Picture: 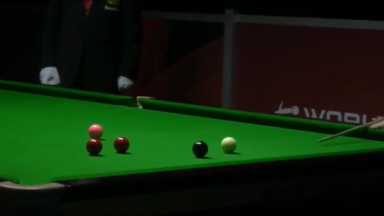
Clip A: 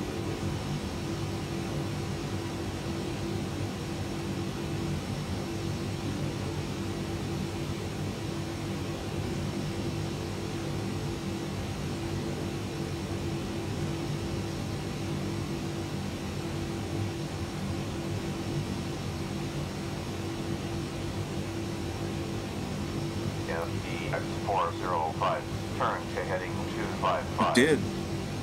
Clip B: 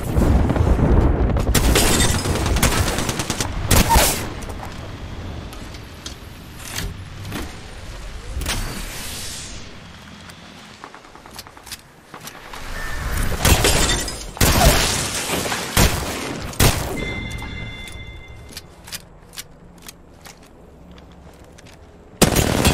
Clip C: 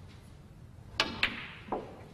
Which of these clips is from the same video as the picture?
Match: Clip C